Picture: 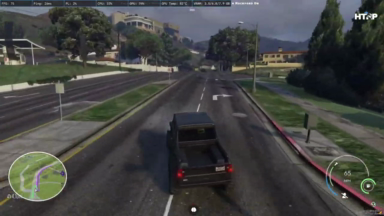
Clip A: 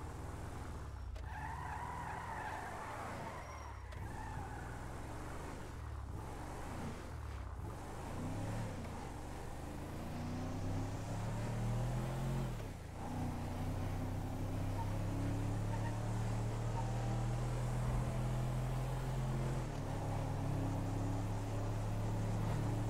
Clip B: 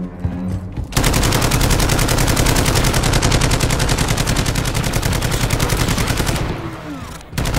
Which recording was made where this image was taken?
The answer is A